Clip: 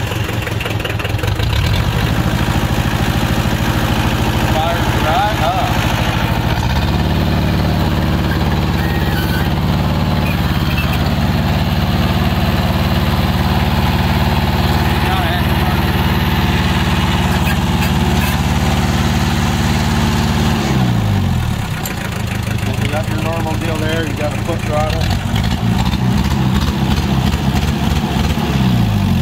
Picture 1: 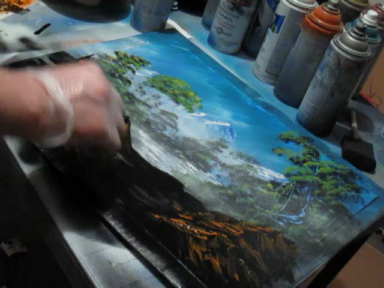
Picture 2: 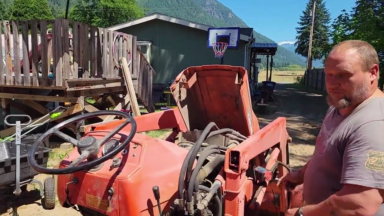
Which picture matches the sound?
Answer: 2